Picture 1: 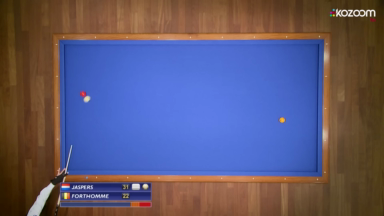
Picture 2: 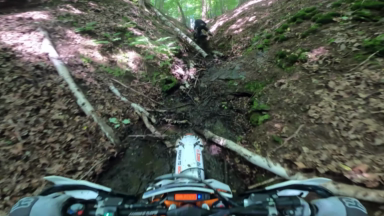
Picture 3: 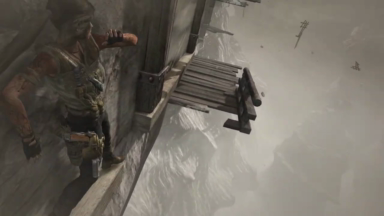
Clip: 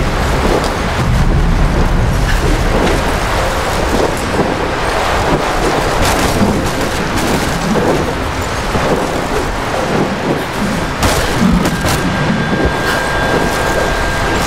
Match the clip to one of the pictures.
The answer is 3